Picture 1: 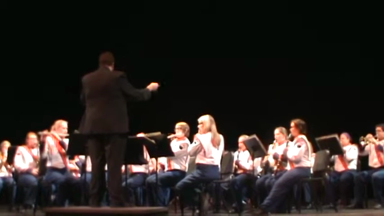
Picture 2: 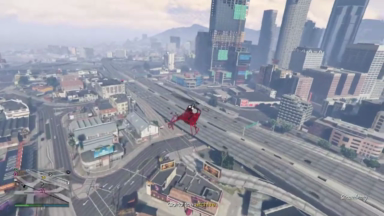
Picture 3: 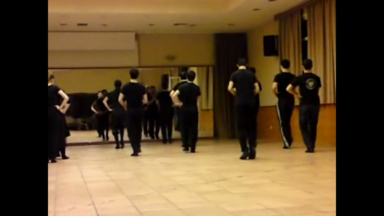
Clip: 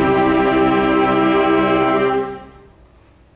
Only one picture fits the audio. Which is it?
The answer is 1